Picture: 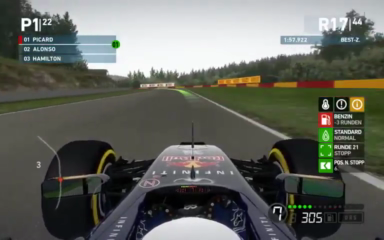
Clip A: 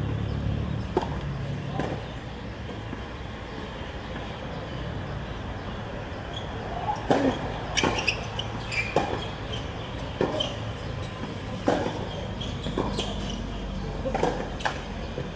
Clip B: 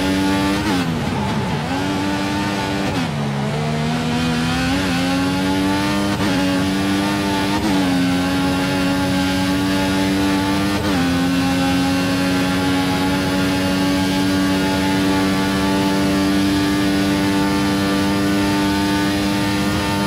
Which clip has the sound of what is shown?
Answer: B